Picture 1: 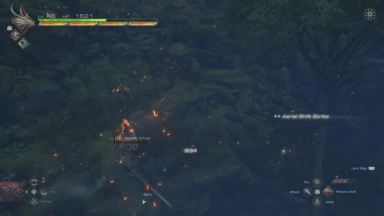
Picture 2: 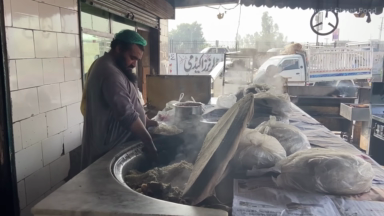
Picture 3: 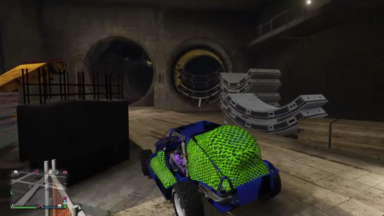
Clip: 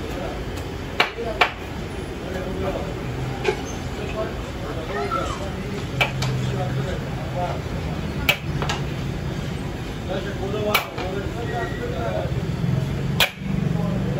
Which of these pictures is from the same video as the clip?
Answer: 2